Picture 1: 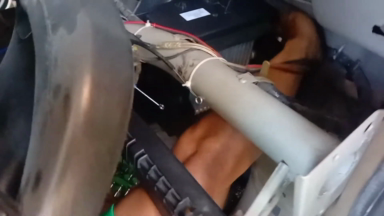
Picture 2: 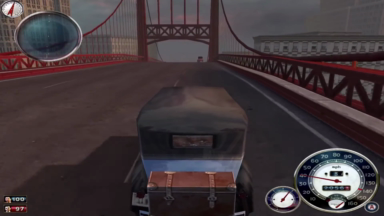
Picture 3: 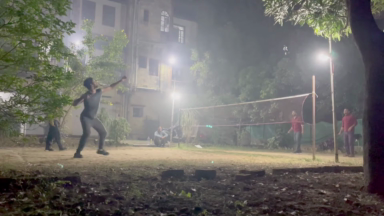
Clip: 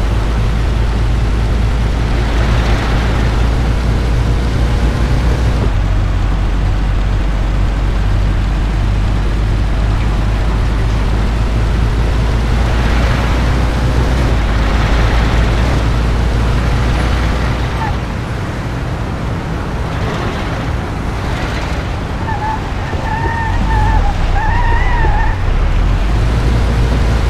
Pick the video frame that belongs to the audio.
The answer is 2